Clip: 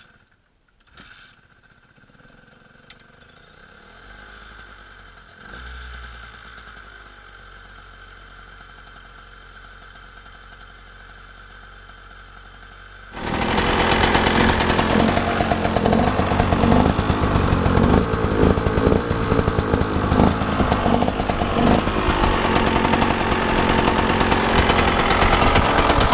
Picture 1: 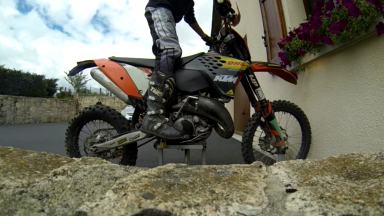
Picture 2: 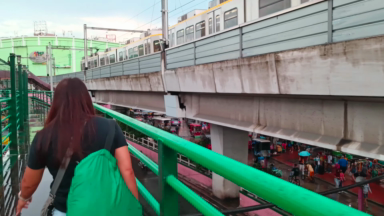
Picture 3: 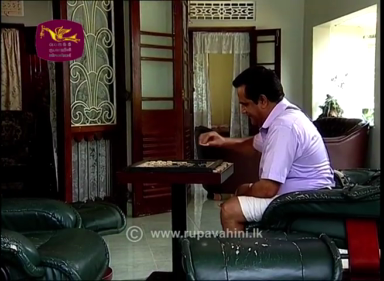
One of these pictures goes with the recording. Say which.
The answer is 1